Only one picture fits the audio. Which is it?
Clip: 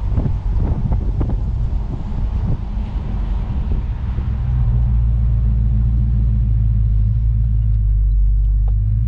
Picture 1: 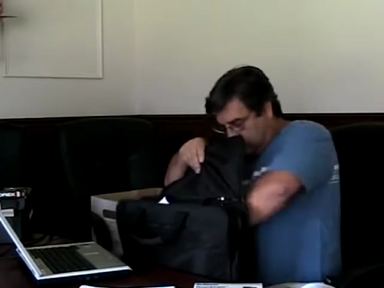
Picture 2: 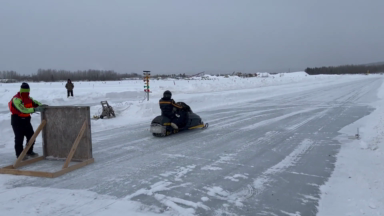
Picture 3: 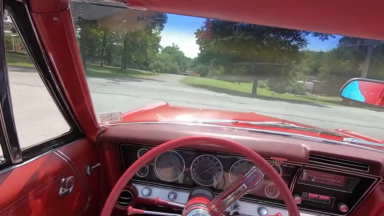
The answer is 3